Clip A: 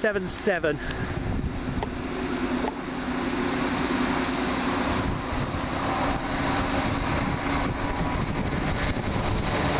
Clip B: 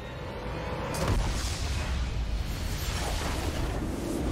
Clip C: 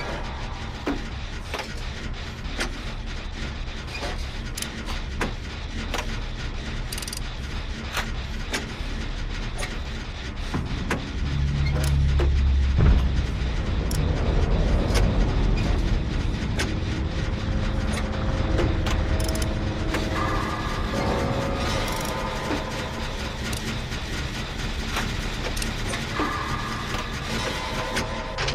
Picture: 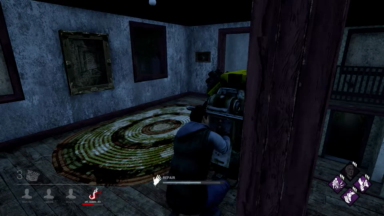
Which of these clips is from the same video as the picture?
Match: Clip C